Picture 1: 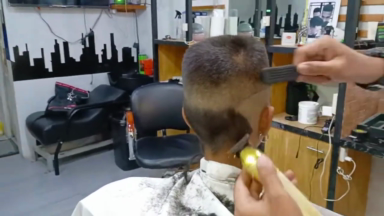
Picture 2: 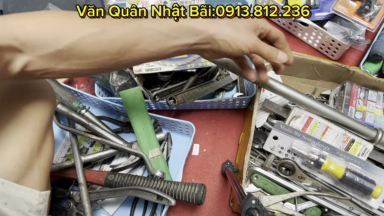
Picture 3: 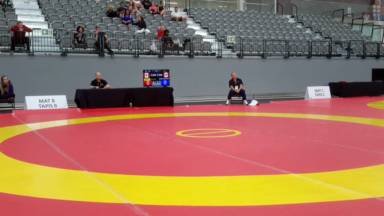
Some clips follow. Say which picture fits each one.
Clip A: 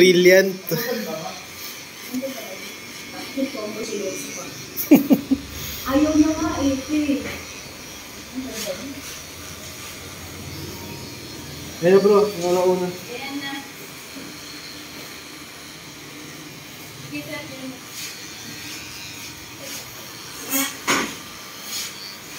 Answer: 1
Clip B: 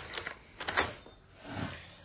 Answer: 2